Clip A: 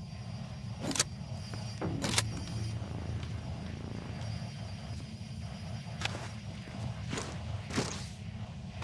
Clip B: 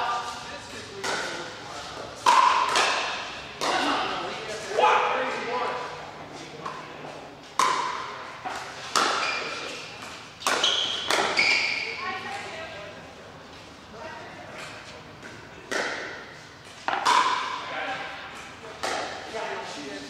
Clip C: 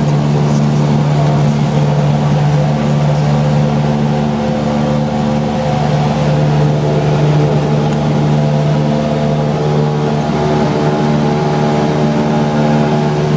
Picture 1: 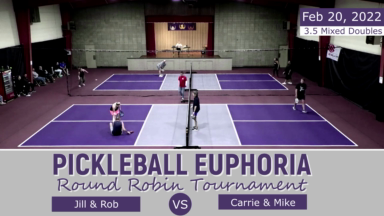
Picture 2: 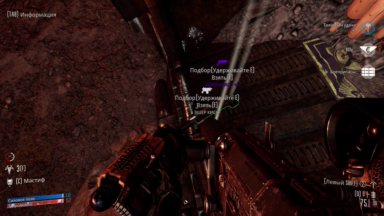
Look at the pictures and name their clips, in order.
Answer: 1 B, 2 A